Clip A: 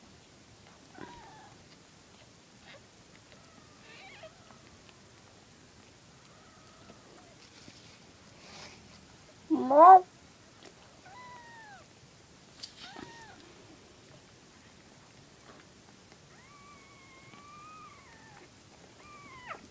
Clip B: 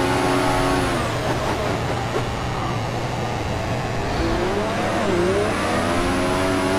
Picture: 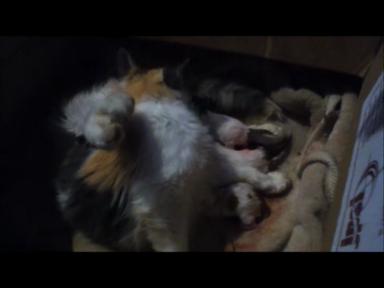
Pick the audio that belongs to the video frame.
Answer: A